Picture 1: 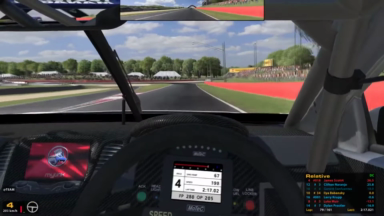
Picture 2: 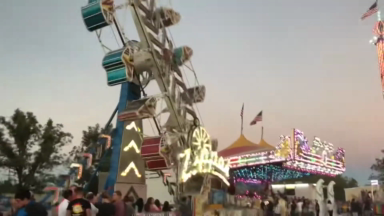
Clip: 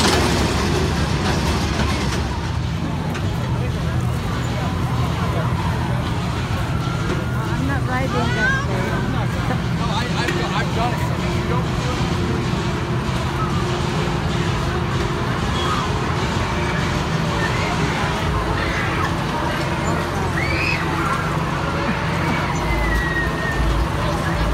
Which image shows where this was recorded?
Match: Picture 2